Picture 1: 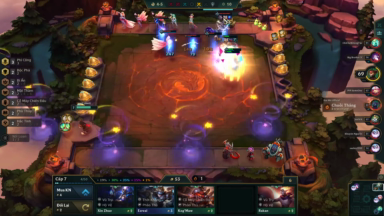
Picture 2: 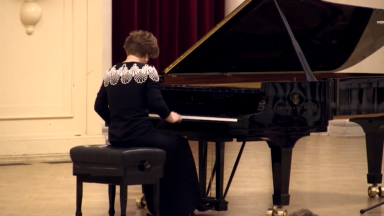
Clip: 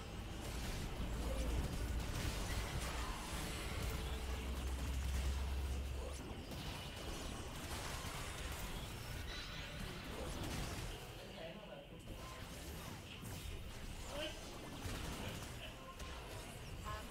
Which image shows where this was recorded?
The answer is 1